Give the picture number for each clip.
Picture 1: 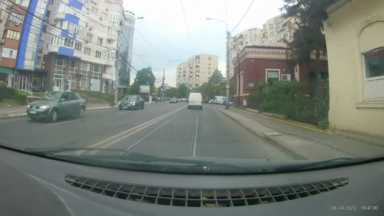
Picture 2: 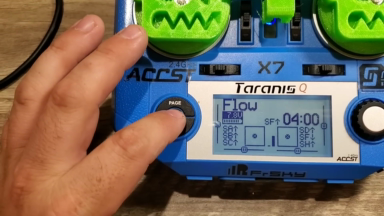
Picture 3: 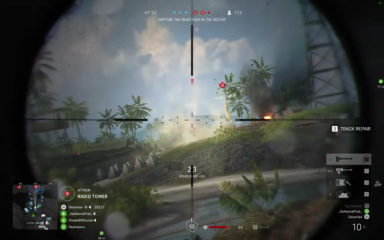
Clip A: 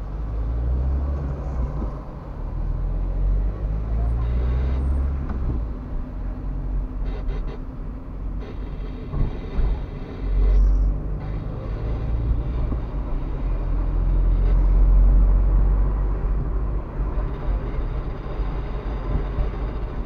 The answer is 1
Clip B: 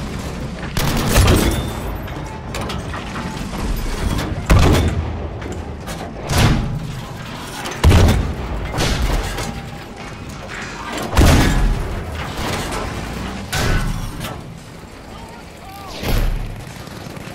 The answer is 3